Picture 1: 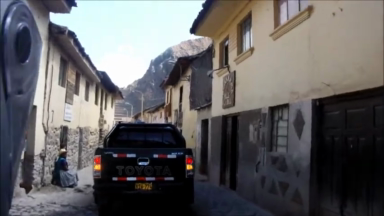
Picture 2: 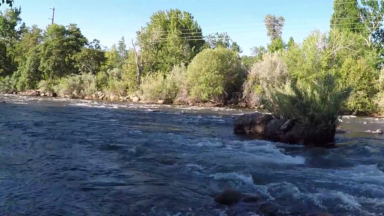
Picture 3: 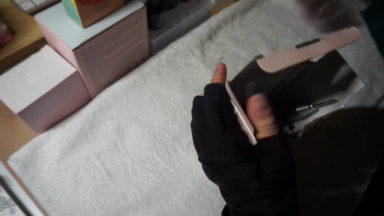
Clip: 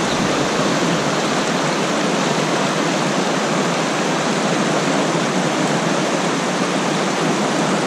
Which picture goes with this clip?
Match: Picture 2